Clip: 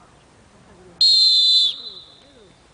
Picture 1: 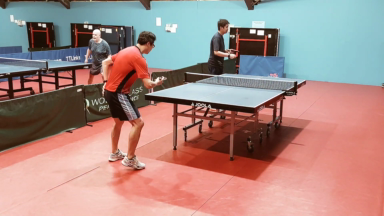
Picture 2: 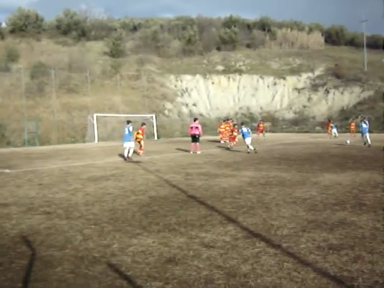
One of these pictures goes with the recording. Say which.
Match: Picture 2